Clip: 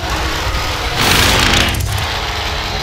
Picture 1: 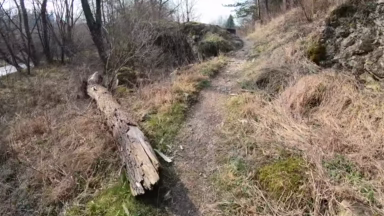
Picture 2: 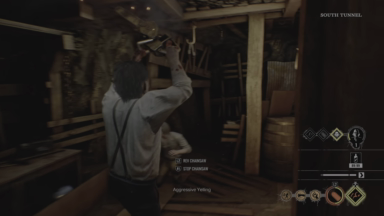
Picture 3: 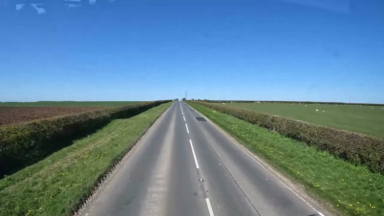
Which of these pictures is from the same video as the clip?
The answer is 2